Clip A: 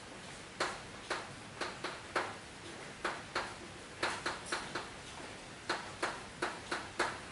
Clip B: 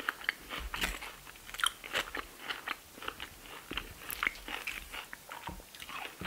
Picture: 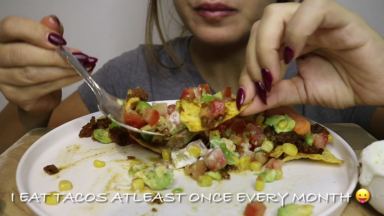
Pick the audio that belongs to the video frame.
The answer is B